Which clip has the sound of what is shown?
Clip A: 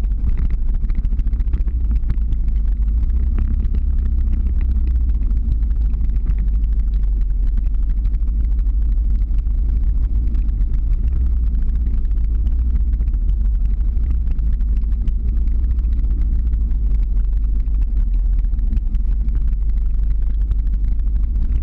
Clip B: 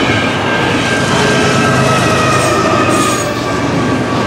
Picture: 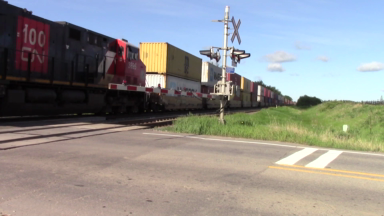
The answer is B